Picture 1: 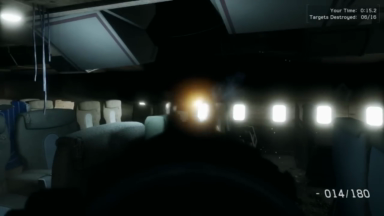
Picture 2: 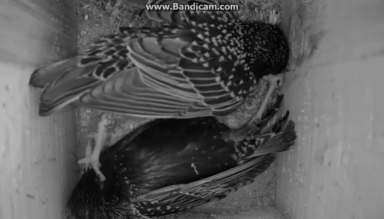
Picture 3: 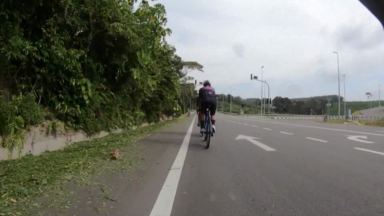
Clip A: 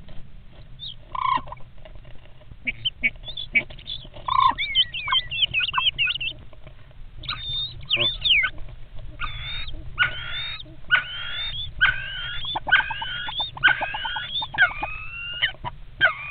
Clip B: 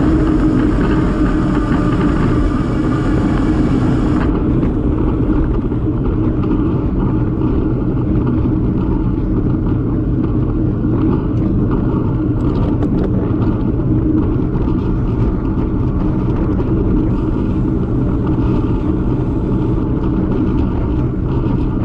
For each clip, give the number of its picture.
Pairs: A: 2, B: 3